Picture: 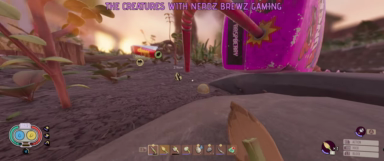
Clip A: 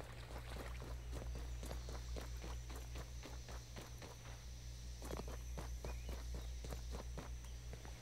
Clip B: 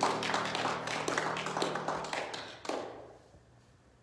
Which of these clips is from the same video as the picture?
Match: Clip A